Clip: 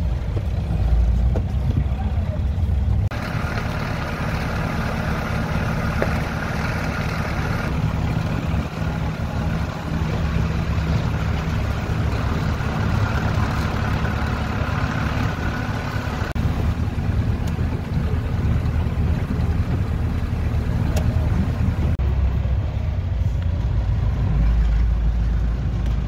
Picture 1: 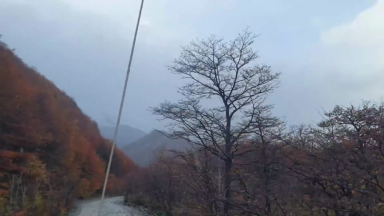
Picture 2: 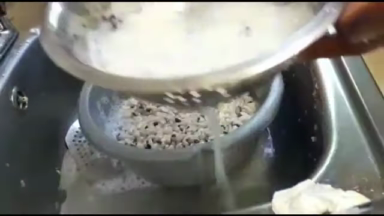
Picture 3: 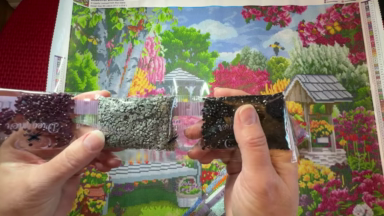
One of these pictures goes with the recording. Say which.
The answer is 1